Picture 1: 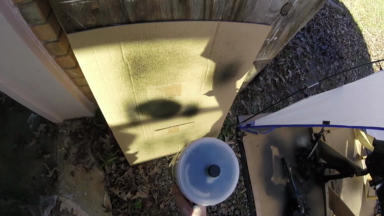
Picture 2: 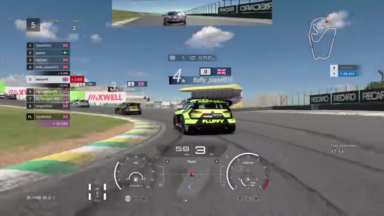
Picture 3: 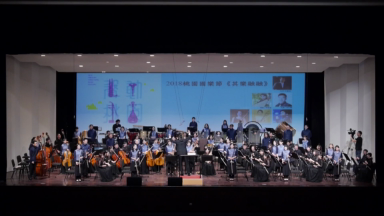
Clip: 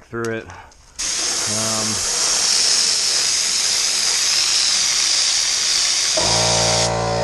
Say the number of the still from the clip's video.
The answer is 1